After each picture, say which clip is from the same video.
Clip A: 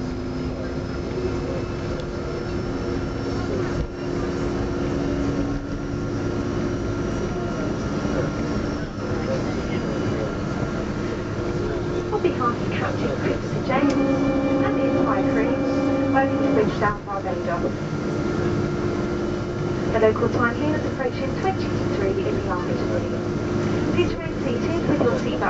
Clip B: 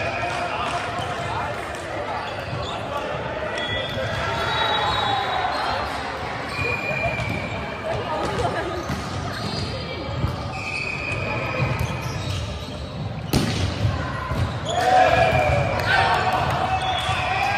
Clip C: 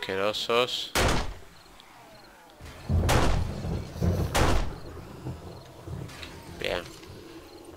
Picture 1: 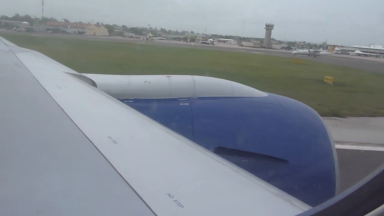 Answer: A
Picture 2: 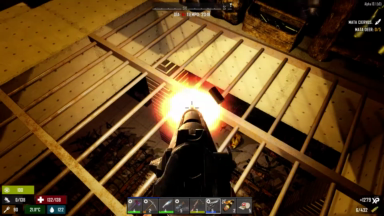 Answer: C